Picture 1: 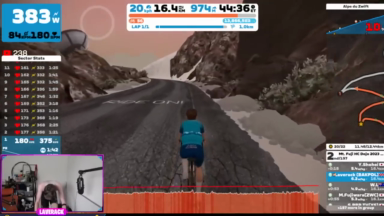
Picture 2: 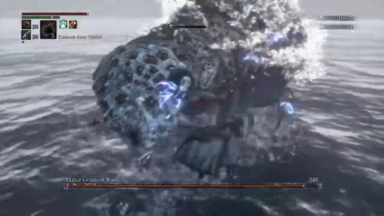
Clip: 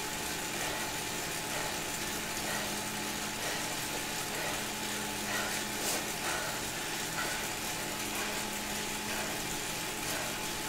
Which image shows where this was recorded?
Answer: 1